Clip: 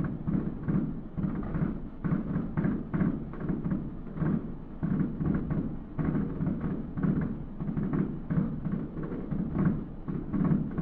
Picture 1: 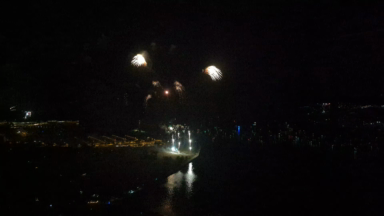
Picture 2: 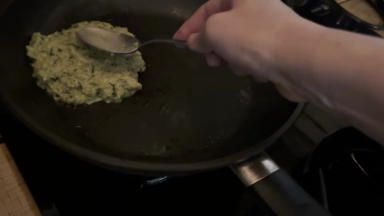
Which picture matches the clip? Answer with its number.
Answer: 1